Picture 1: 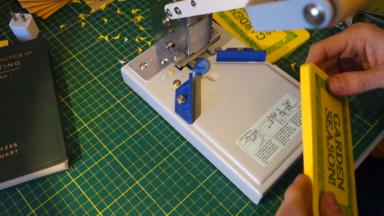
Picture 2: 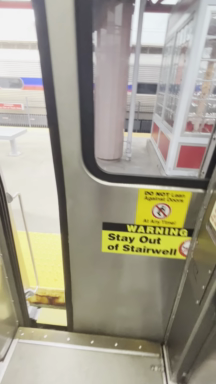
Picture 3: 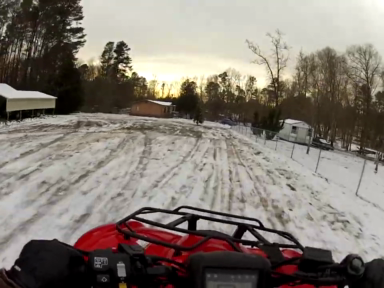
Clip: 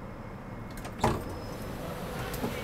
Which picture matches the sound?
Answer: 2